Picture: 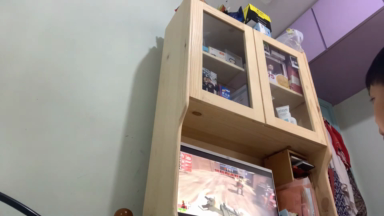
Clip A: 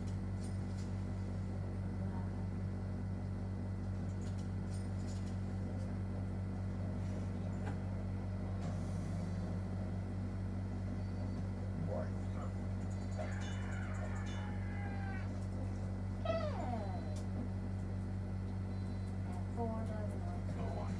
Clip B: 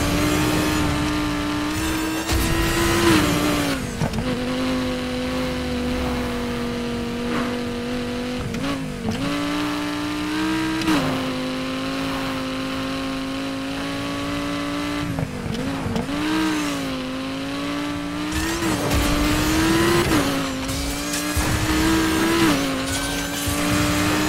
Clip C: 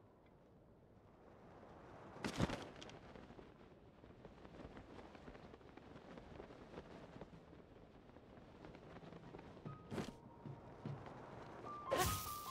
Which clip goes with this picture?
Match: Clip A